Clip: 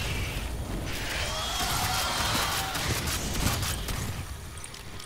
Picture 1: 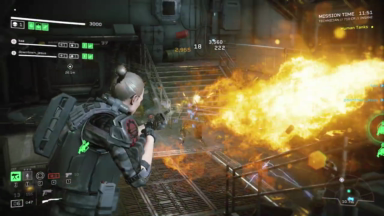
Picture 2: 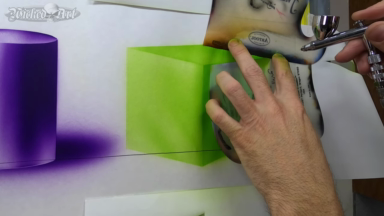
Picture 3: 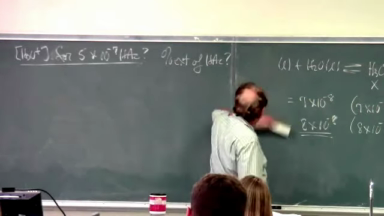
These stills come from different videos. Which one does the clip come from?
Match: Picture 1